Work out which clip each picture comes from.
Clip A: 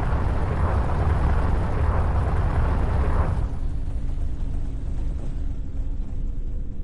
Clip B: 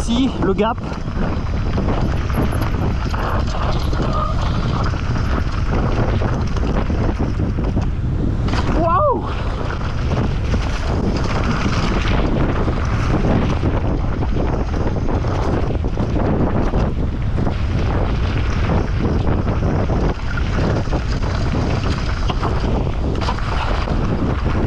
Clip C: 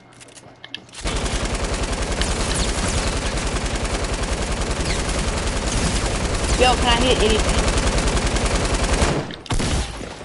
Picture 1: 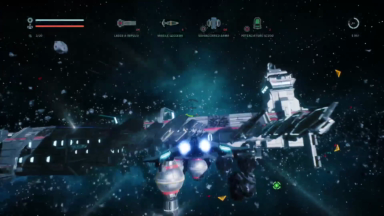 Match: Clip A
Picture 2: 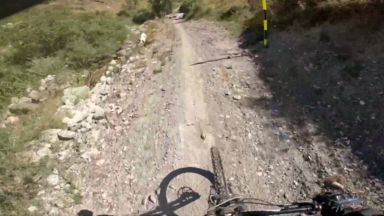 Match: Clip B